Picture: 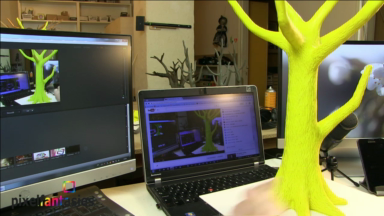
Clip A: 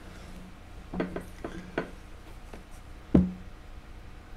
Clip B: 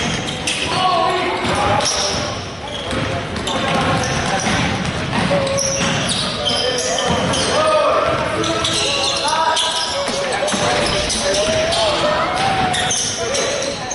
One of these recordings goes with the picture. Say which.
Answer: A